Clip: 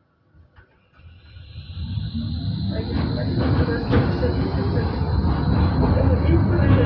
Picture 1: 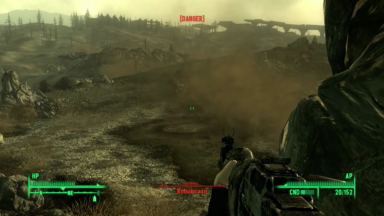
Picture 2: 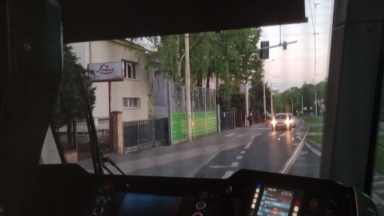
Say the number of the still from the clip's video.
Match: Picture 2